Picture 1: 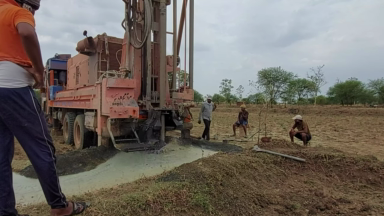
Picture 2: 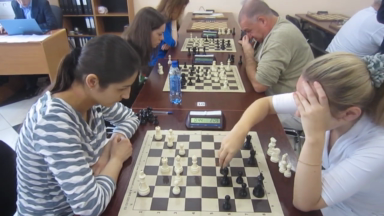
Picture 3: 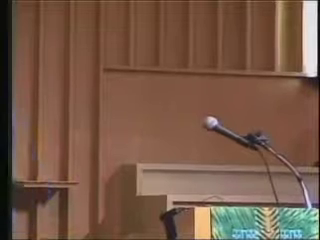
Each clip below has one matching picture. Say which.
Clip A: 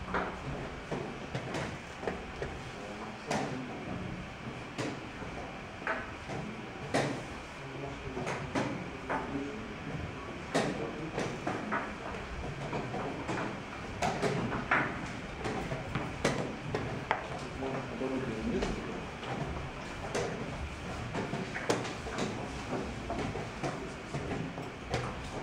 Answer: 2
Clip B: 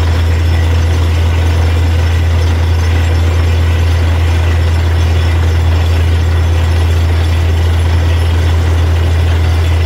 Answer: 1